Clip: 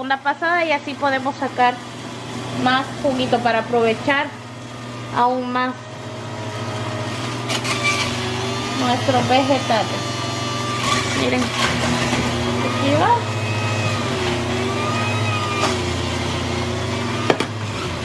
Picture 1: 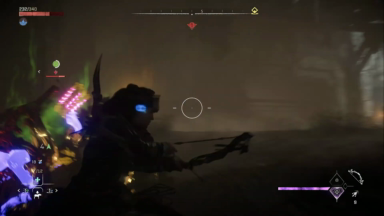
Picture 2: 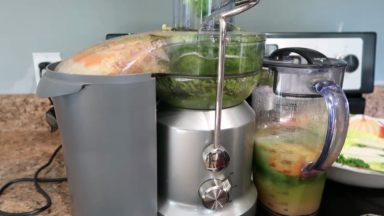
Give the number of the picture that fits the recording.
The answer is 2